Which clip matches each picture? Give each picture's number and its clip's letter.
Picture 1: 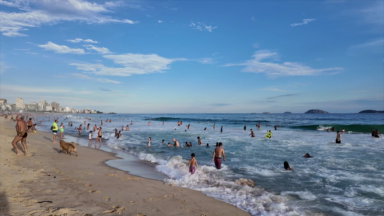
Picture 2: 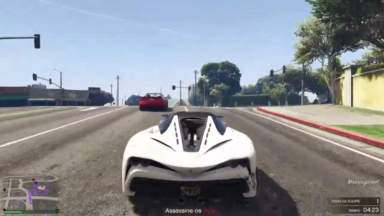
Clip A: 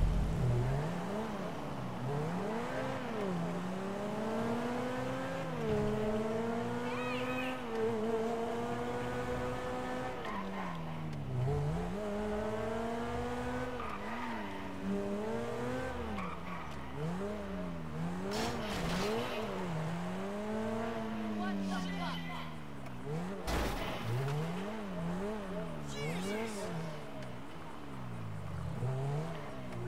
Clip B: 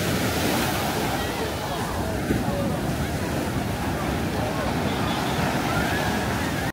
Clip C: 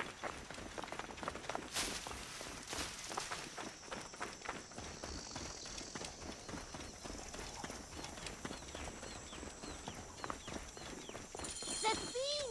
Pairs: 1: B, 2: A